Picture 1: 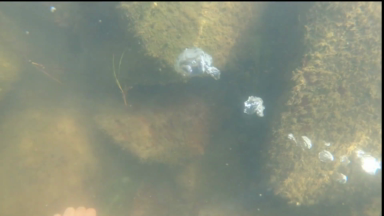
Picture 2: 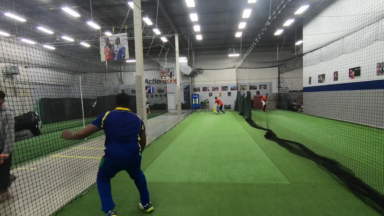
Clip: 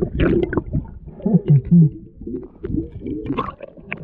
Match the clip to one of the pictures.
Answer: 1